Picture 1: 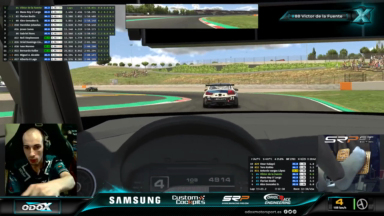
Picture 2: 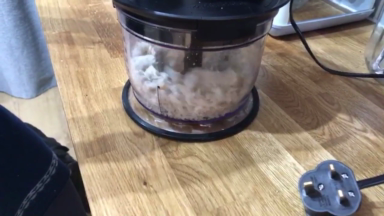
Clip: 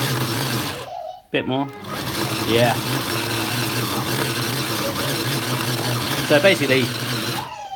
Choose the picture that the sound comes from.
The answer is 2